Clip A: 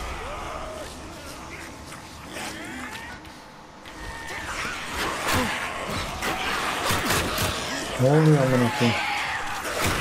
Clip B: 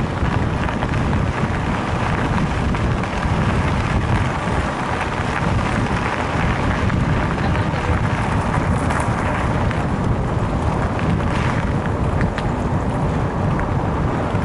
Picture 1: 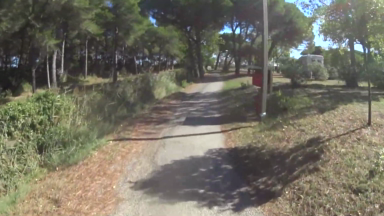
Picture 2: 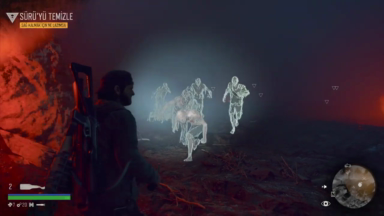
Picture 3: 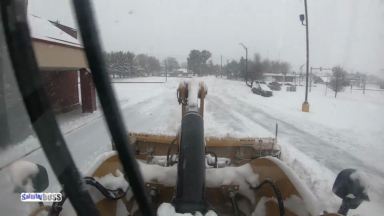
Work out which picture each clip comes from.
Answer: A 2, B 1